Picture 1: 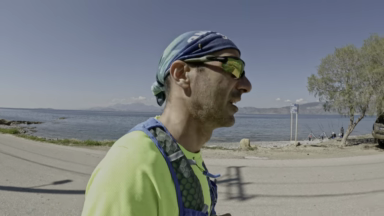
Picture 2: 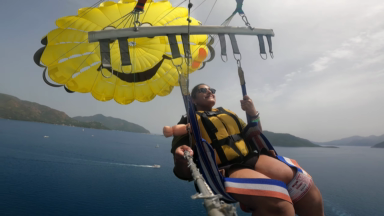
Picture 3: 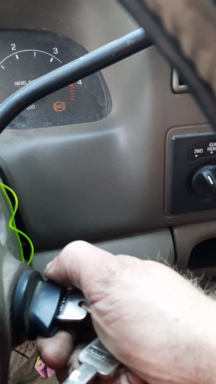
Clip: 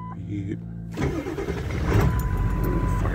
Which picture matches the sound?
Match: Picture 3